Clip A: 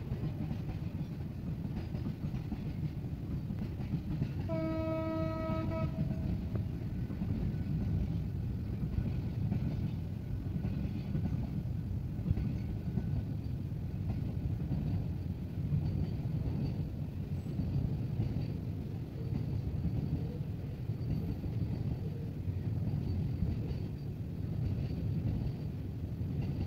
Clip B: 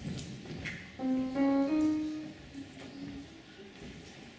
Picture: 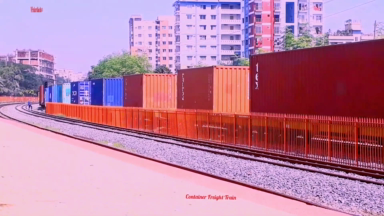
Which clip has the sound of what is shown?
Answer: A